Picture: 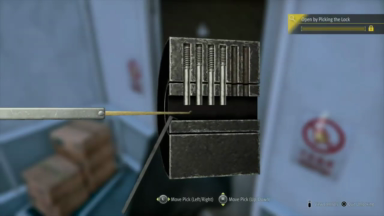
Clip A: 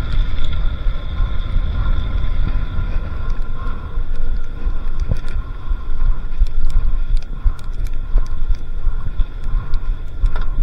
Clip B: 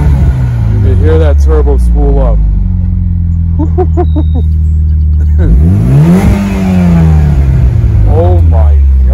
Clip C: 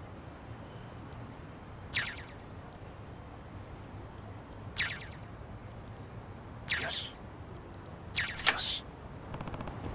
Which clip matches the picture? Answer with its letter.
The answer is C